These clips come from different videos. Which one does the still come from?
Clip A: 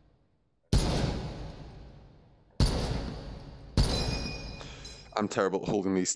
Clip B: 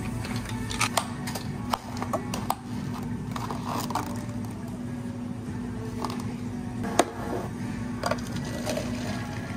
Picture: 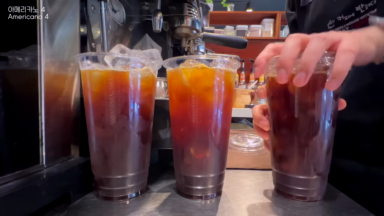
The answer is B